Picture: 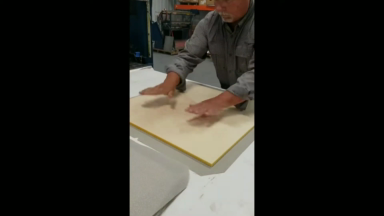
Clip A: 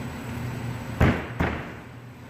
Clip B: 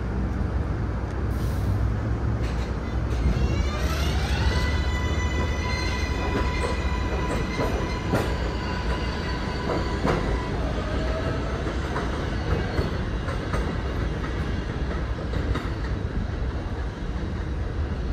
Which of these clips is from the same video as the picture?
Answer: A